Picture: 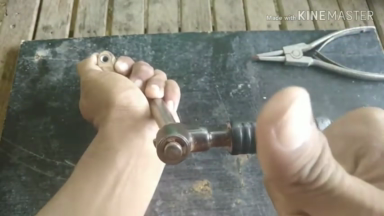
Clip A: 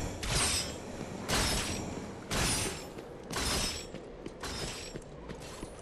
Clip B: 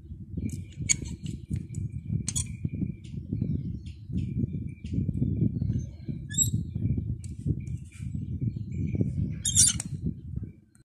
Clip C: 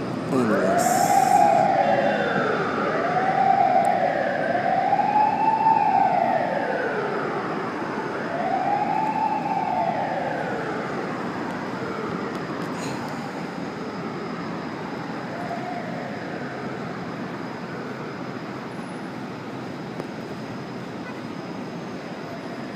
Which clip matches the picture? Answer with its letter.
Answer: B